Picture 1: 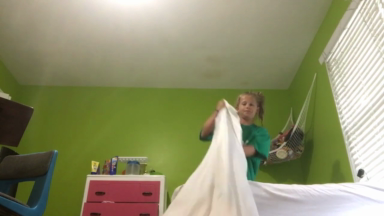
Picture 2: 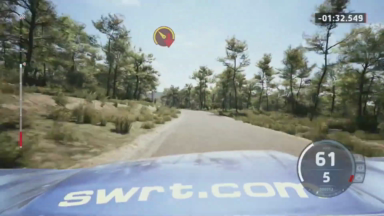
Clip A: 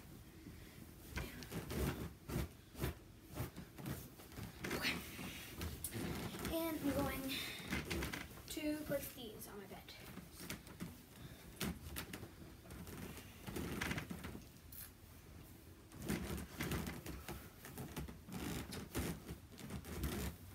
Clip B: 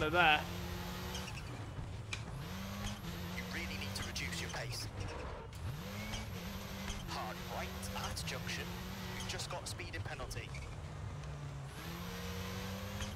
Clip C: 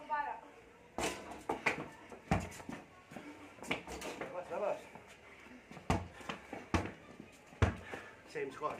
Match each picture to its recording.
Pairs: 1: A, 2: B